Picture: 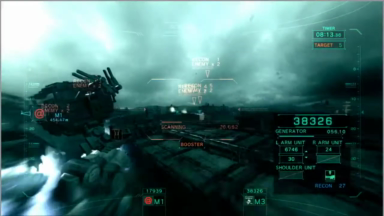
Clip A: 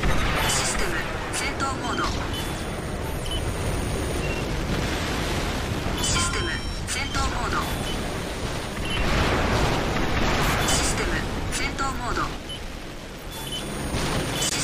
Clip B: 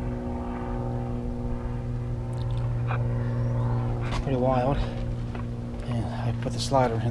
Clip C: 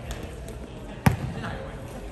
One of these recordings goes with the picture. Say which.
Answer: A